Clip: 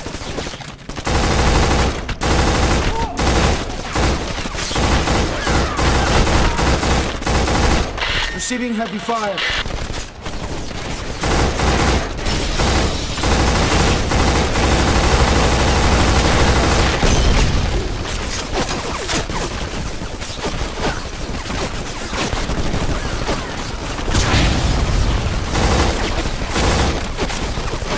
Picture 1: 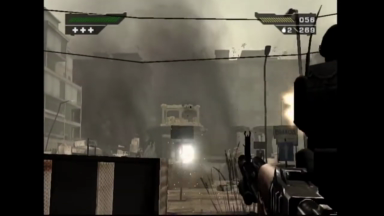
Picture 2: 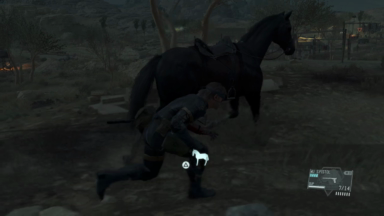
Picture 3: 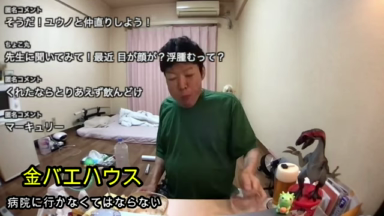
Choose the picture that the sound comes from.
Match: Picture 1